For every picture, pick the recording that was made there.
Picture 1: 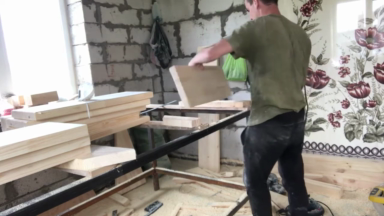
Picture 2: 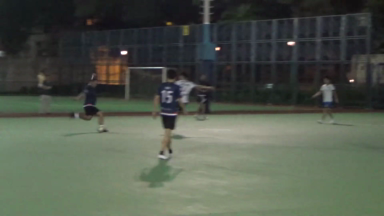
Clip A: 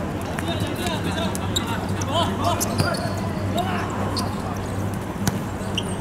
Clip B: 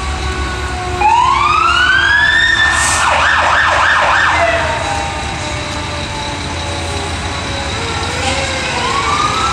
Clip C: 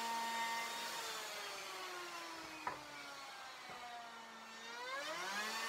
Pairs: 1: C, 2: A